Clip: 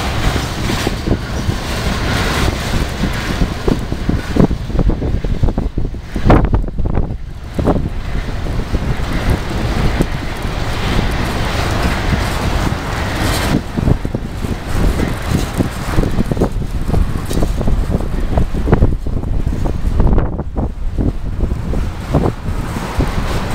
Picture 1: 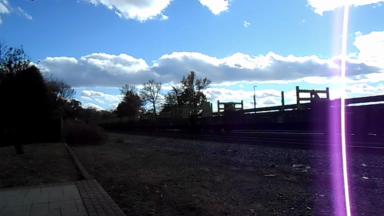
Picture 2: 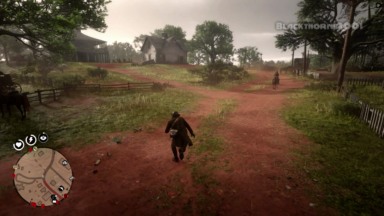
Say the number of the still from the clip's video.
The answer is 1